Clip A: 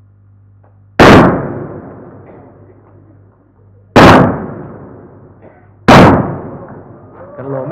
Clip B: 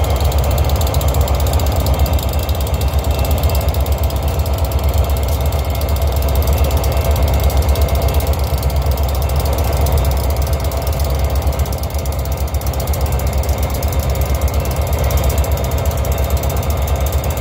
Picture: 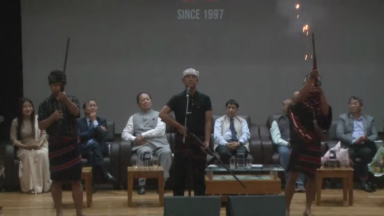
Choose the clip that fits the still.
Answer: A